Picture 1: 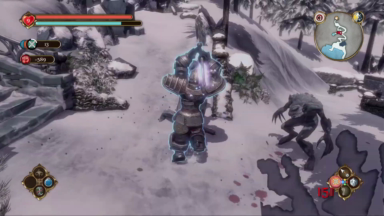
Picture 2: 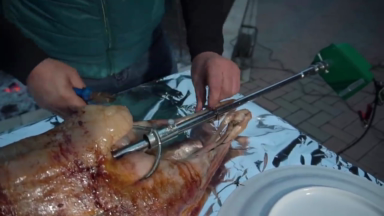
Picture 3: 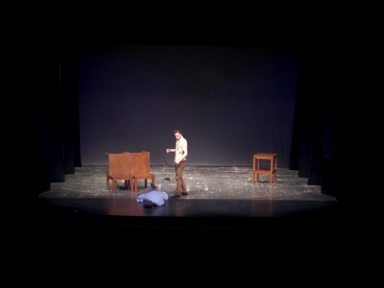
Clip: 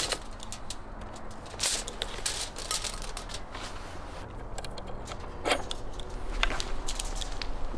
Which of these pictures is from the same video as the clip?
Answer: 2